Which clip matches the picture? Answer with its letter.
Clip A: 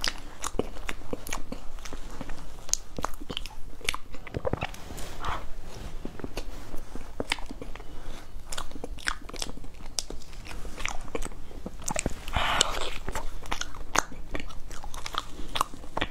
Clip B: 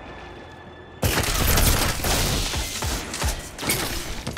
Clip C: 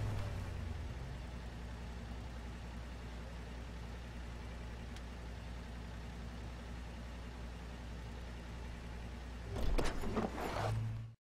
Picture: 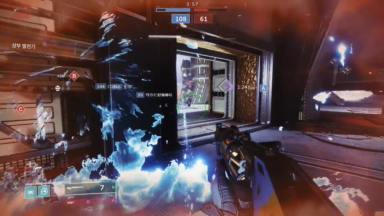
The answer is B